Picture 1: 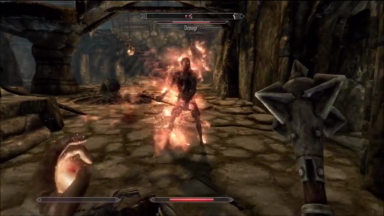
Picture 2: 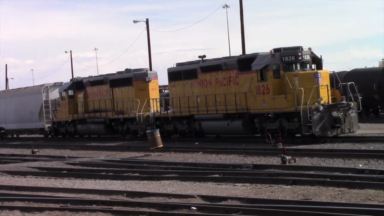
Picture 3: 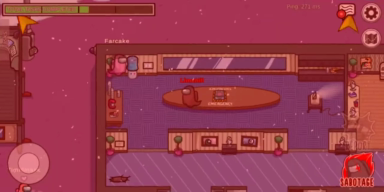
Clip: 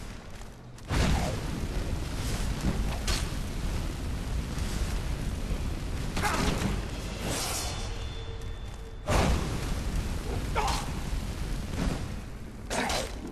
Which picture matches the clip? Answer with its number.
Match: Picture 1